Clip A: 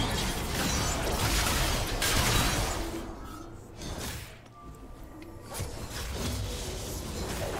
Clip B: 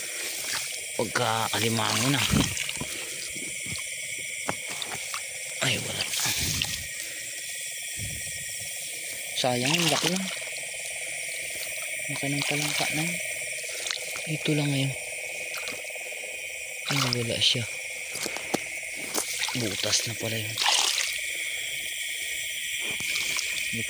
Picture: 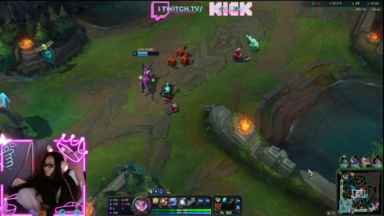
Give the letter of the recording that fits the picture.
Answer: A